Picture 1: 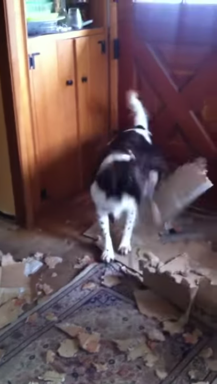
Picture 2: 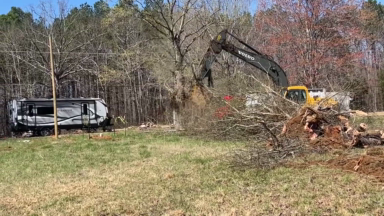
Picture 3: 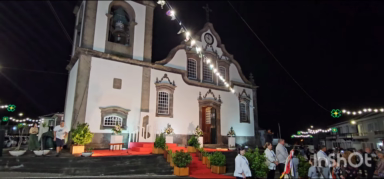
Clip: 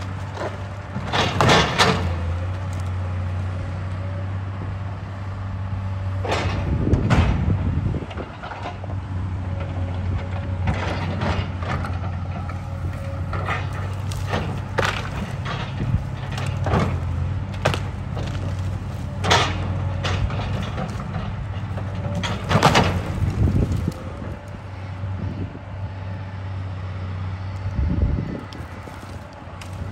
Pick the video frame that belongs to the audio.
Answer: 2